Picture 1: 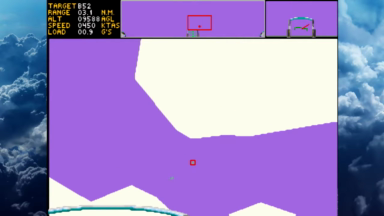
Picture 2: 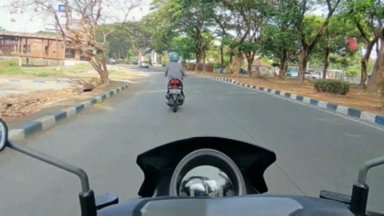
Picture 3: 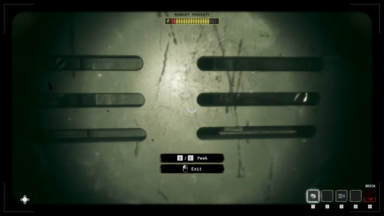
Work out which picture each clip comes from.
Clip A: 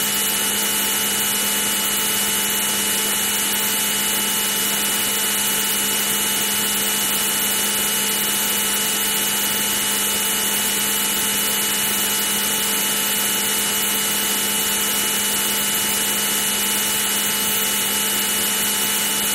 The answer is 1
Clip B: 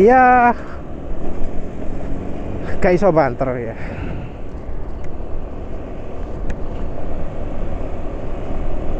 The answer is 2